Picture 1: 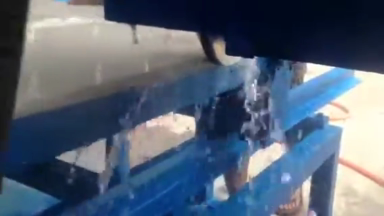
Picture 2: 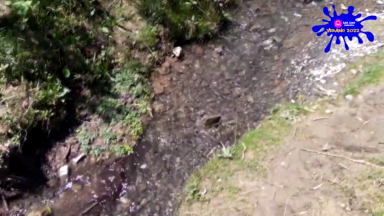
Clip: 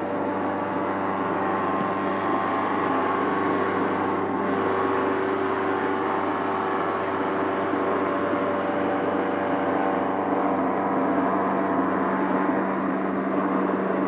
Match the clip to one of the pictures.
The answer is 1